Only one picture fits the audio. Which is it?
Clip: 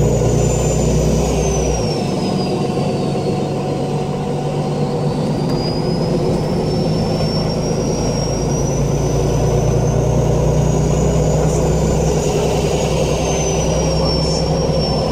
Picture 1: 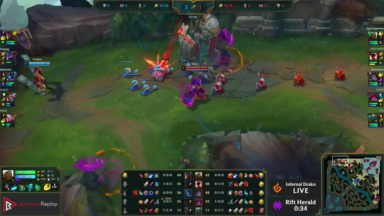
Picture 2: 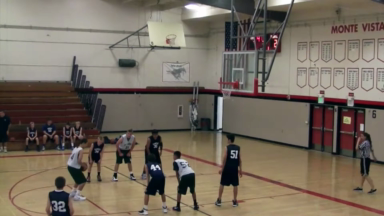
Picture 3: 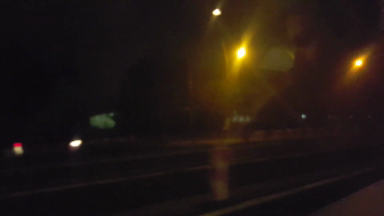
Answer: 3